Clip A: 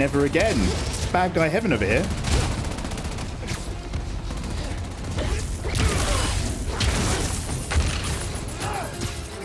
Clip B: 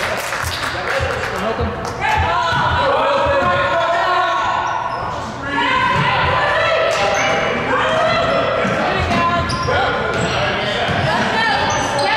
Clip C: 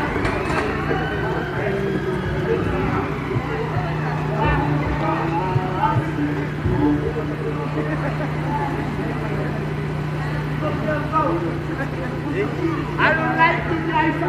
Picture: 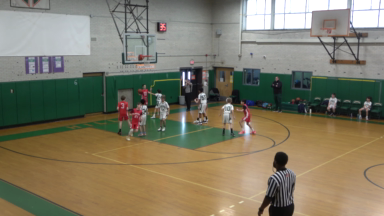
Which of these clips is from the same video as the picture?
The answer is B